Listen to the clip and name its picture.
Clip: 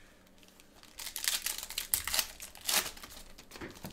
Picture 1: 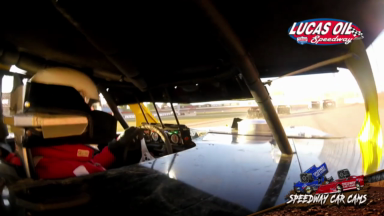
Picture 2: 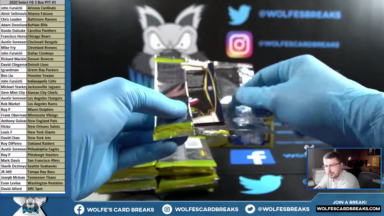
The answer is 2